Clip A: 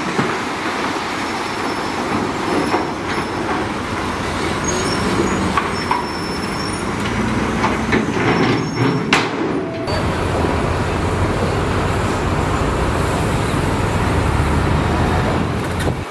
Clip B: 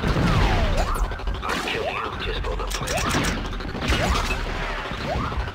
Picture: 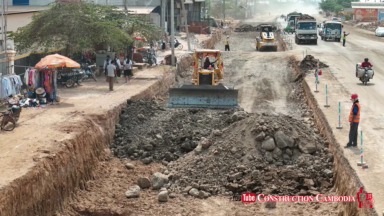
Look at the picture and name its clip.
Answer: A